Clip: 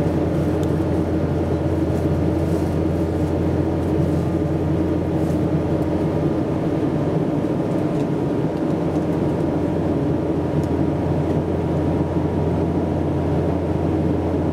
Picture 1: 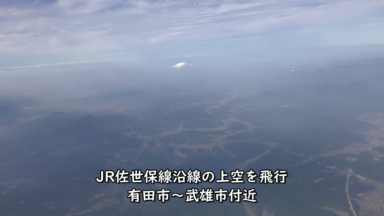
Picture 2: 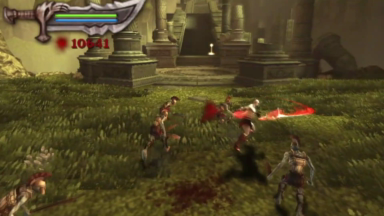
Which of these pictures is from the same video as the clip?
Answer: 1